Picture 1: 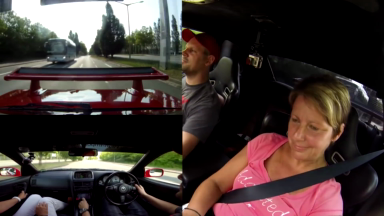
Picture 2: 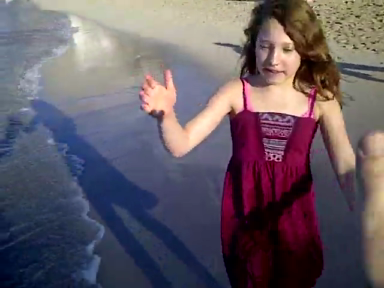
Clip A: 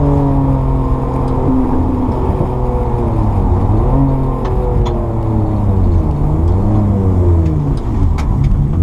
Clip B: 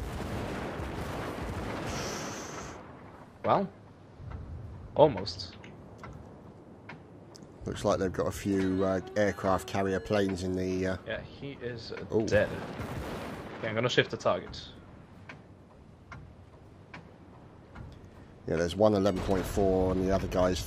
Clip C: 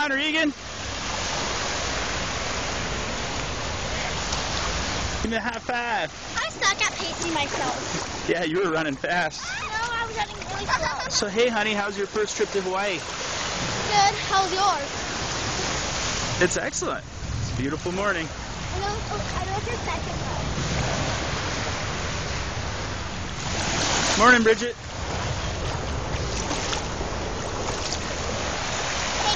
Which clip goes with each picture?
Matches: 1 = A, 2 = C